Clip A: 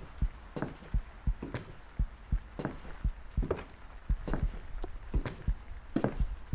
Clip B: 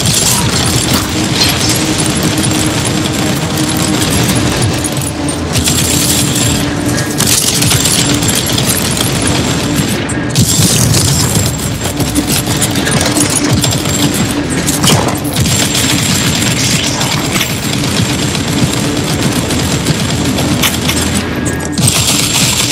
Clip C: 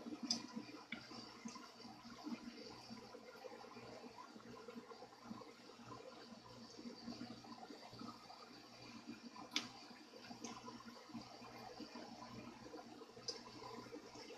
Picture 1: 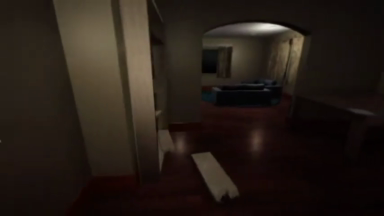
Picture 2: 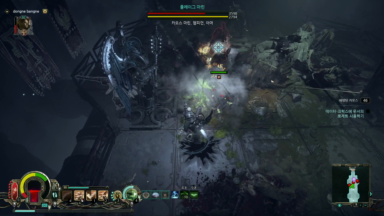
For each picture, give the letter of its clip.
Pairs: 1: A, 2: B